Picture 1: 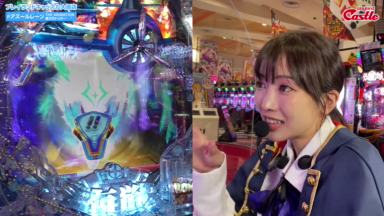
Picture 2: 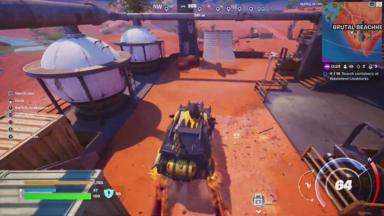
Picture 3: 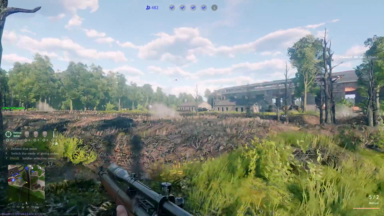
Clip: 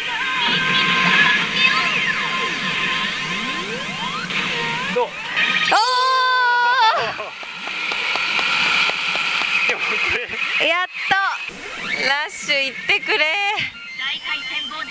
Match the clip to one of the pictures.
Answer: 1